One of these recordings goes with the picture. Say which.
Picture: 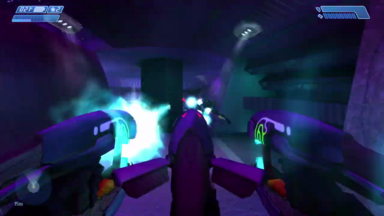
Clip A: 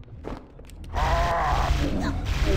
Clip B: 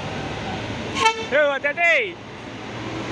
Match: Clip A